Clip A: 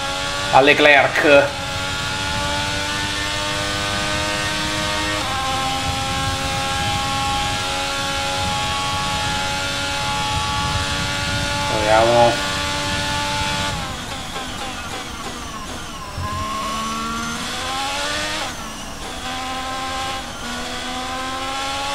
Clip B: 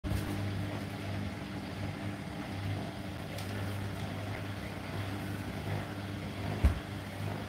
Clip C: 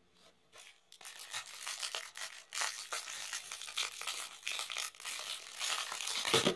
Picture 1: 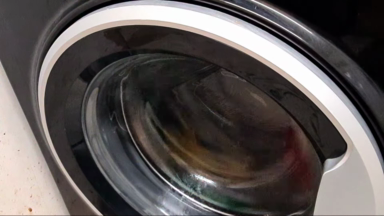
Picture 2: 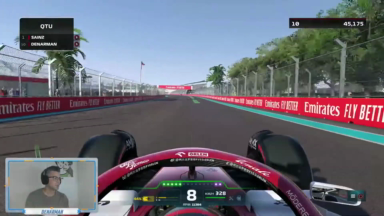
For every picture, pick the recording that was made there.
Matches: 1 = B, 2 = A